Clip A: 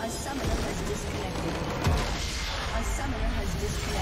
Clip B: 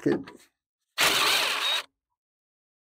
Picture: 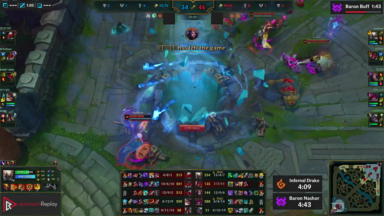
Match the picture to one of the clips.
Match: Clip A